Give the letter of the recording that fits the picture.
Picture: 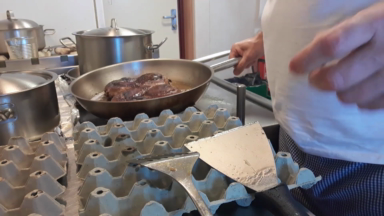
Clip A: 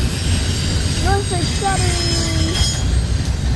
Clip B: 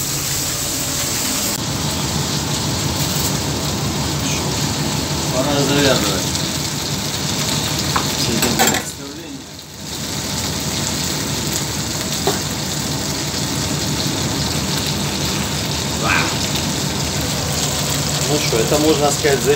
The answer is B